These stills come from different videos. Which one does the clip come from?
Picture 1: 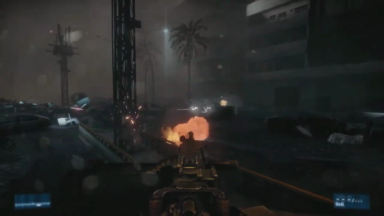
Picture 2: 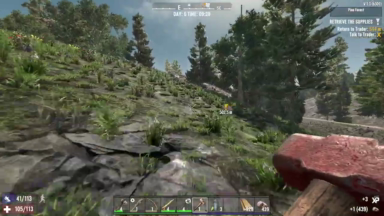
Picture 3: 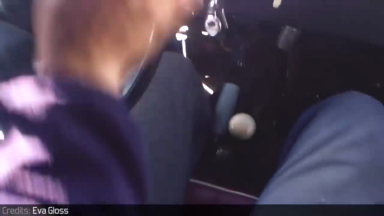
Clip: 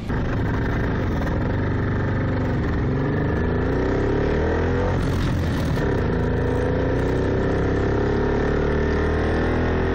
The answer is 3